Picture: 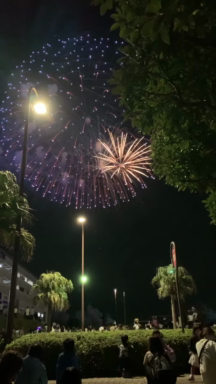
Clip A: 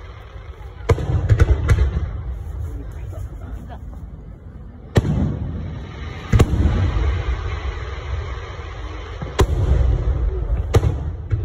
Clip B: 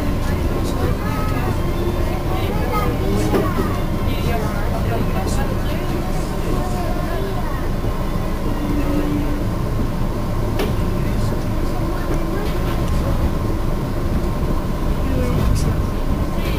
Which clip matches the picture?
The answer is A